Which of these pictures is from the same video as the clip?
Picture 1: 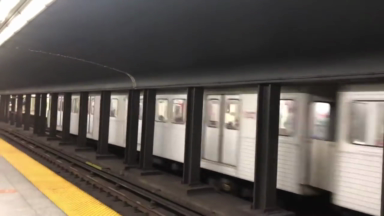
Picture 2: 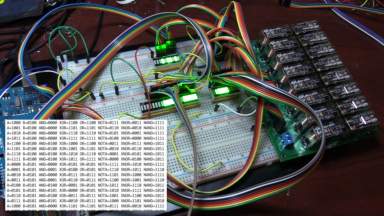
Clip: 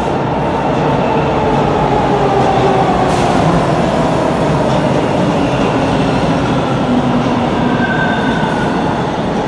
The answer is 1